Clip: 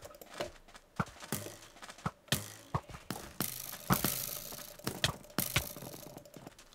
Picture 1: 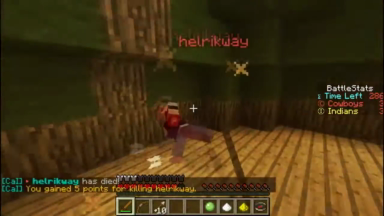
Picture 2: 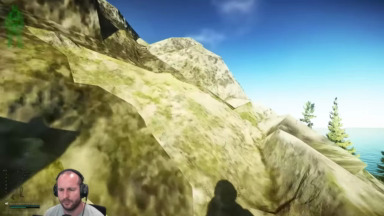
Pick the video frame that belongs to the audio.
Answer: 1